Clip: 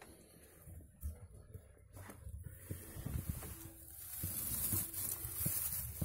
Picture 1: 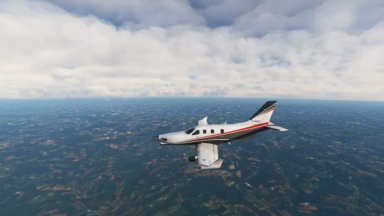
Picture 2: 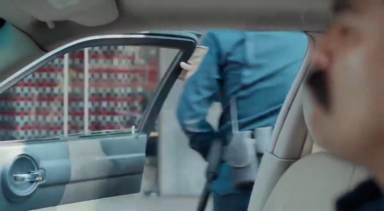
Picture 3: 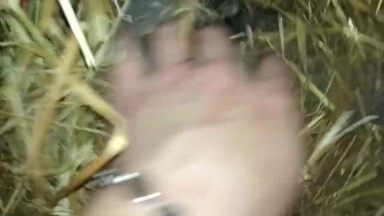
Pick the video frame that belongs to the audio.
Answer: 3